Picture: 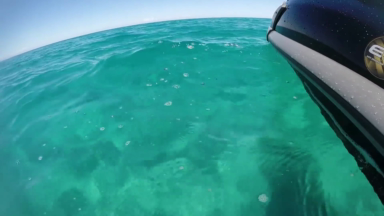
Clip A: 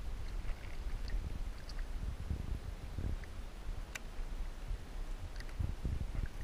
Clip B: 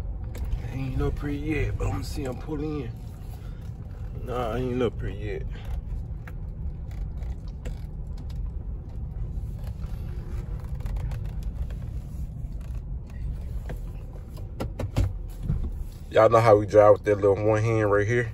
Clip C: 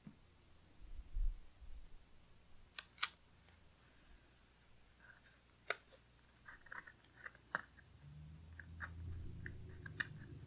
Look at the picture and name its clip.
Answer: A